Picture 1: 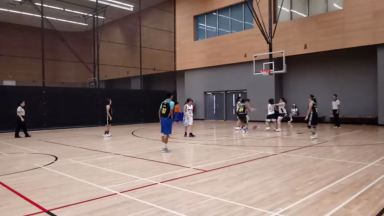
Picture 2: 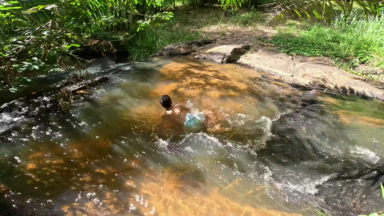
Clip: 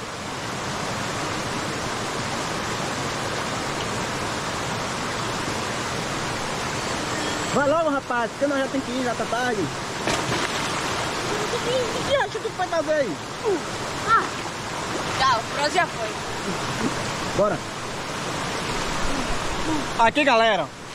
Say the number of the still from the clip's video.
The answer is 2